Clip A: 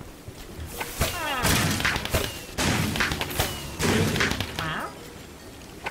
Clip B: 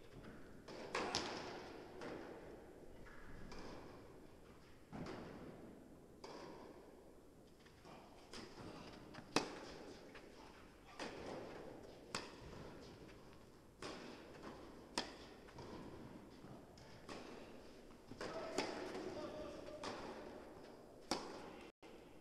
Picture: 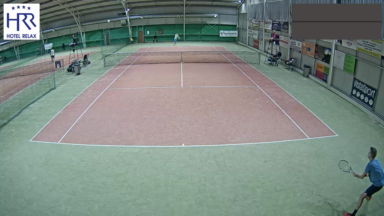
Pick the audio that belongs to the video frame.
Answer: B